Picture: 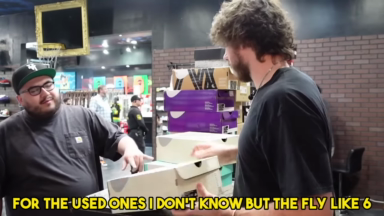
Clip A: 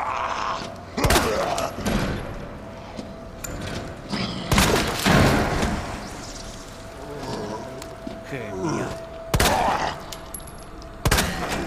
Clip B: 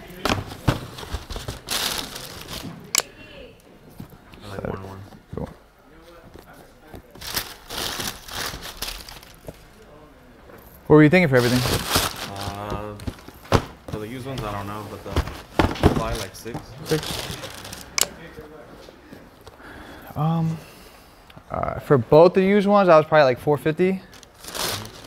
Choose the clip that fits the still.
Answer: B